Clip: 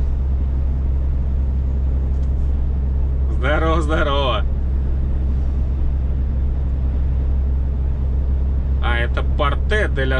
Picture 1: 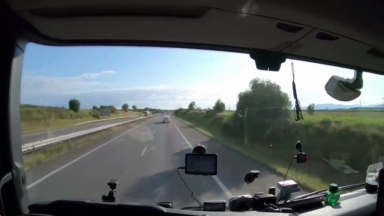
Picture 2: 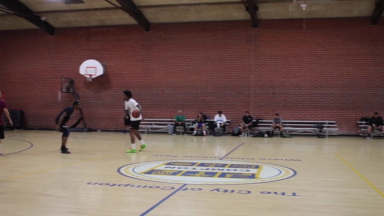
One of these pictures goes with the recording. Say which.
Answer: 1